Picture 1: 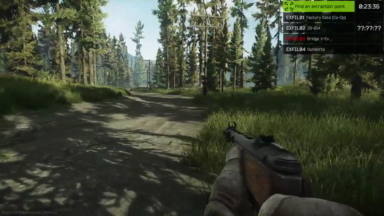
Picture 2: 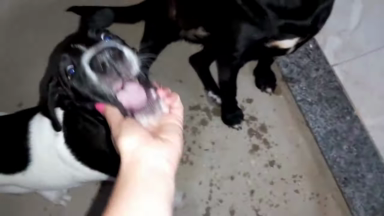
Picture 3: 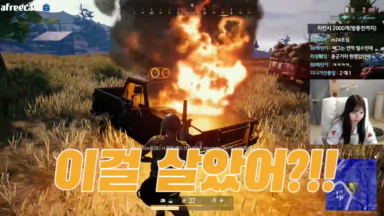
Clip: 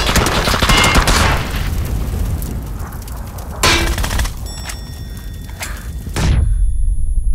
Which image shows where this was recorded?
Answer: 3